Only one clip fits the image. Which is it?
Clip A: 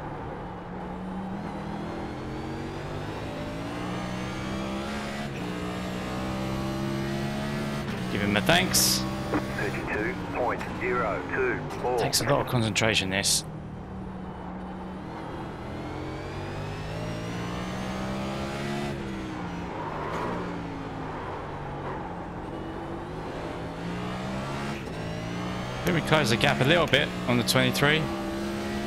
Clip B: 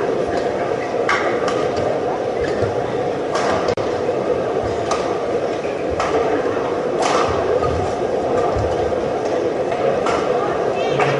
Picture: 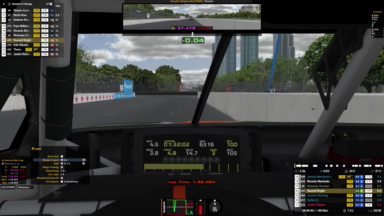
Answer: A